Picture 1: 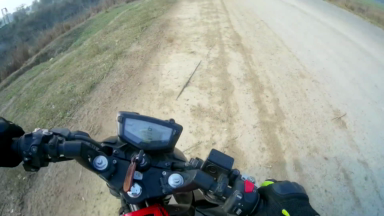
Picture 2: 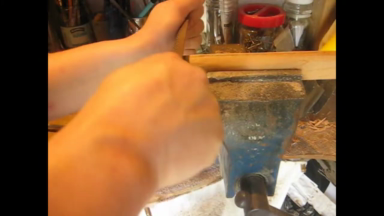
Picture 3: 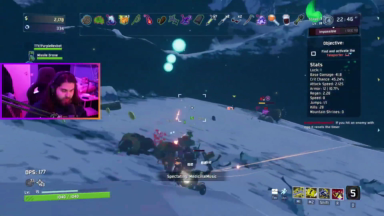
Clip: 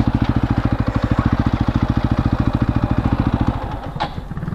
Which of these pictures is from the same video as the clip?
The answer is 1